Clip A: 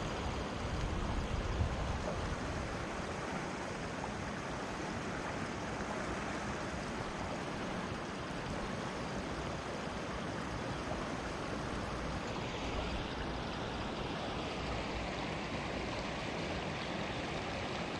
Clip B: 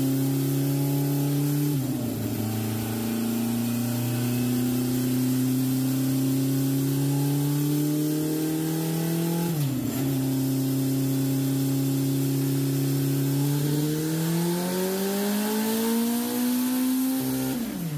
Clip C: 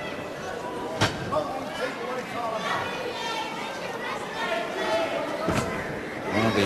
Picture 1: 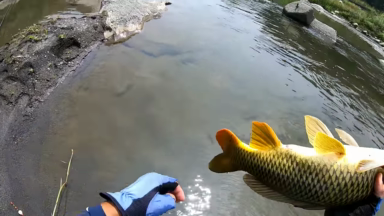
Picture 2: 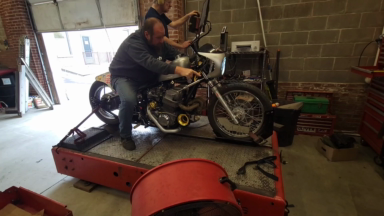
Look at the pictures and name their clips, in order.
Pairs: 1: A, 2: B